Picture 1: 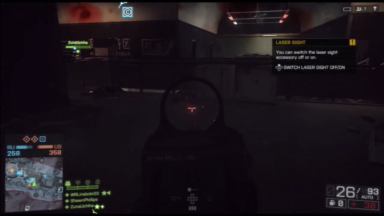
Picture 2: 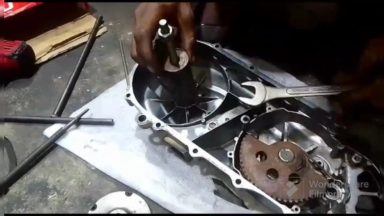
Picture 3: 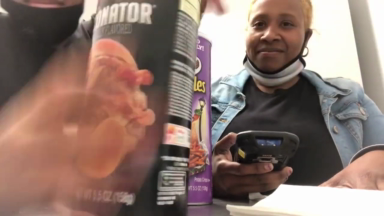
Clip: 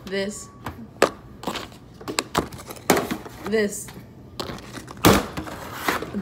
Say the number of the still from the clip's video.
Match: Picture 3